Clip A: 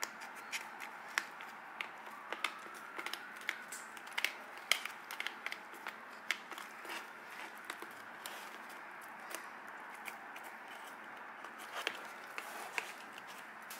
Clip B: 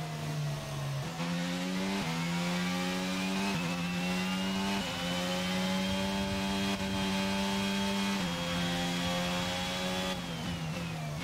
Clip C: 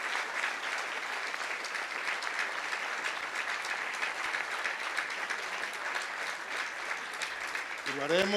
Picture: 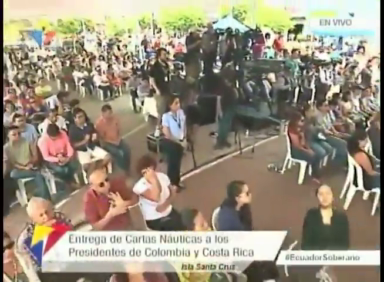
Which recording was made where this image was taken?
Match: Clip C